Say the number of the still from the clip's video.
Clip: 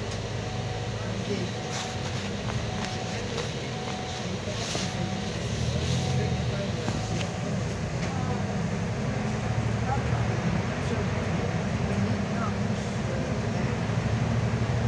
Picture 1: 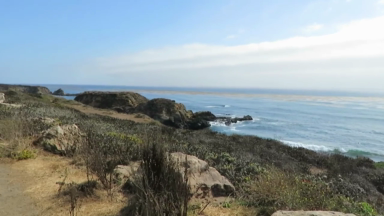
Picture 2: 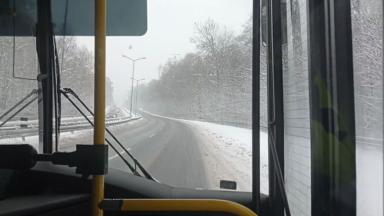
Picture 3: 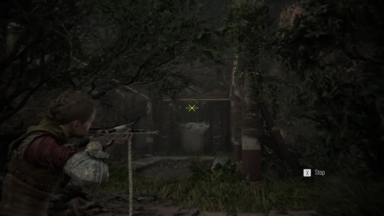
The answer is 2